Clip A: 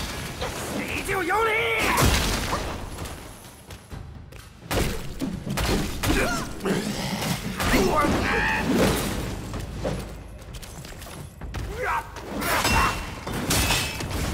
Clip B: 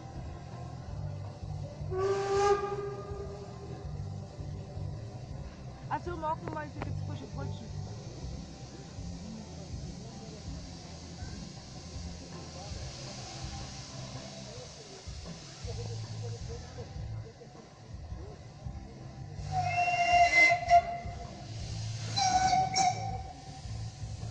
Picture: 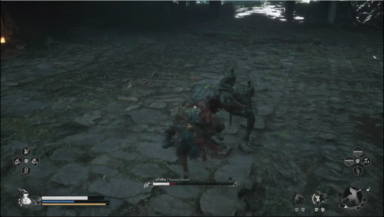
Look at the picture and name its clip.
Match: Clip A